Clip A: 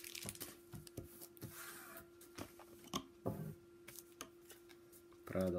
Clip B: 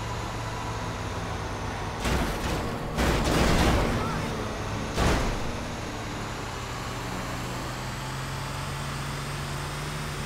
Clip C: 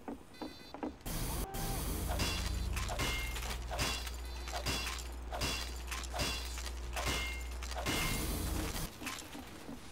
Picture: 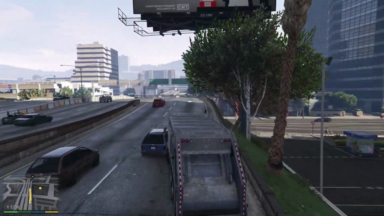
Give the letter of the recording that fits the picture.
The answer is B